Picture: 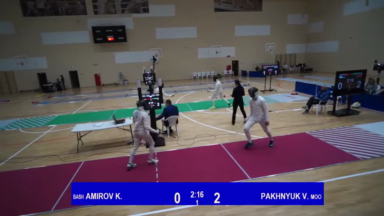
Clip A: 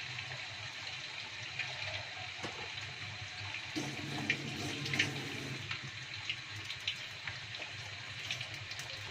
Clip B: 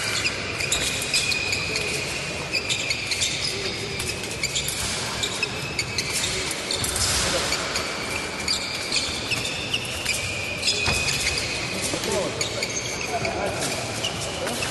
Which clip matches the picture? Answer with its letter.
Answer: B